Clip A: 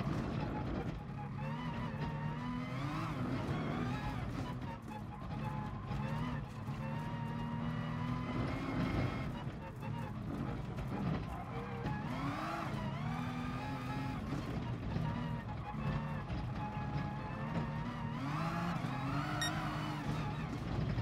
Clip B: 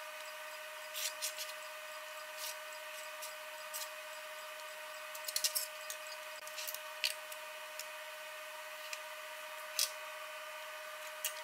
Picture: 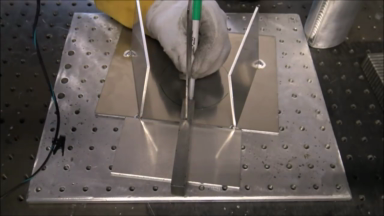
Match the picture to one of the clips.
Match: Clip B